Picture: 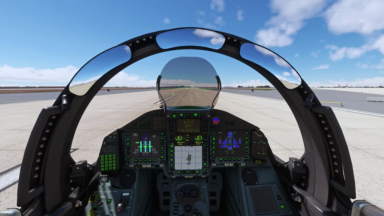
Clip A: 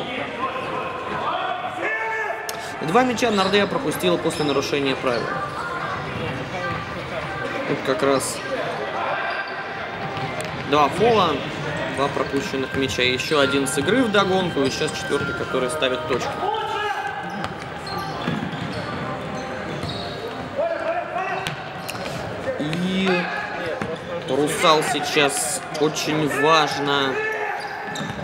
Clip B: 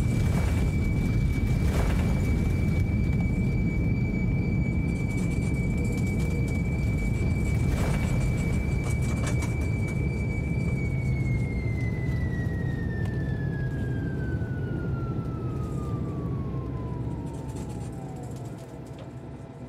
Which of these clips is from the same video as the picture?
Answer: B